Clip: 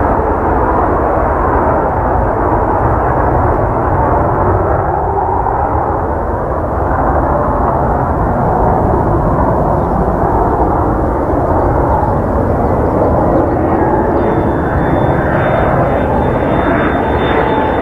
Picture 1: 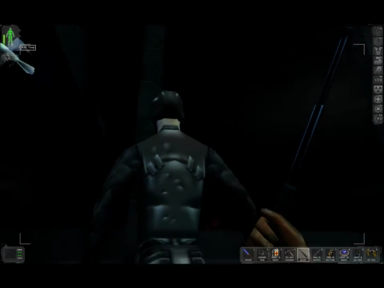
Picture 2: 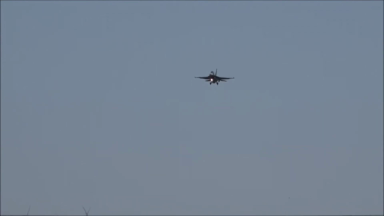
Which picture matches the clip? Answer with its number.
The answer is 2